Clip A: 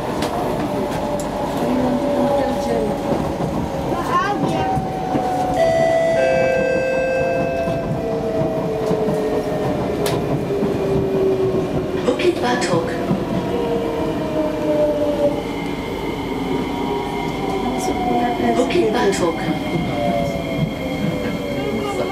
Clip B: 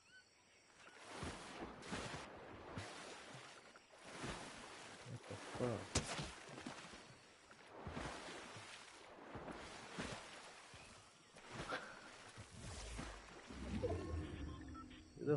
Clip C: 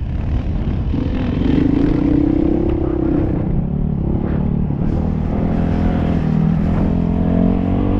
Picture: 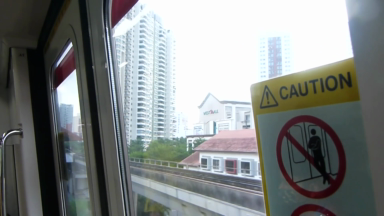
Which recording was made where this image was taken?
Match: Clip A